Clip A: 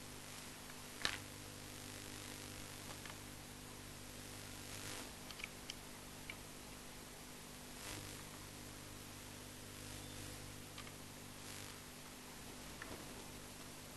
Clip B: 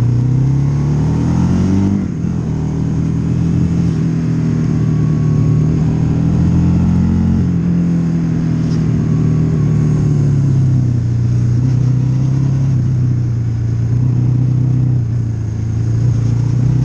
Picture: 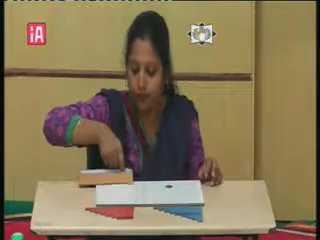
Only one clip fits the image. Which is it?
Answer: A